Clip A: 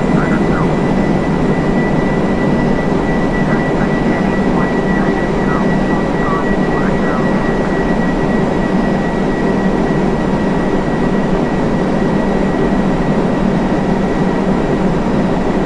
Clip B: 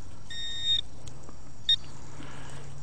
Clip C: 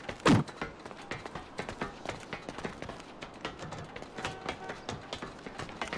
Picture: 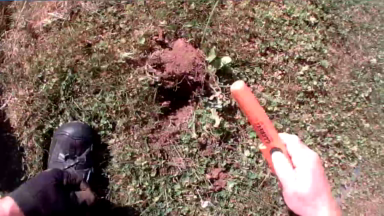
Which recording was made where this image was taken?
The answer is B